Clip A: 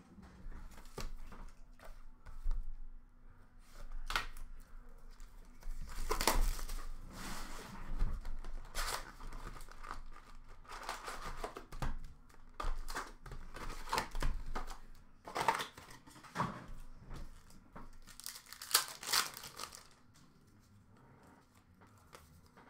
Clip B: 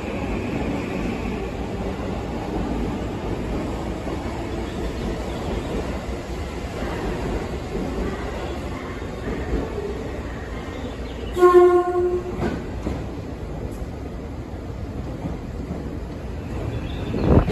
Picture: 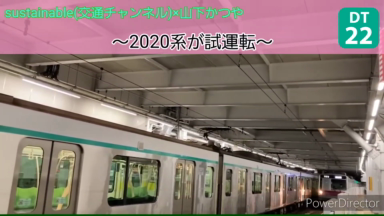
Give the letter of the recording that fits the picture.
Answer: B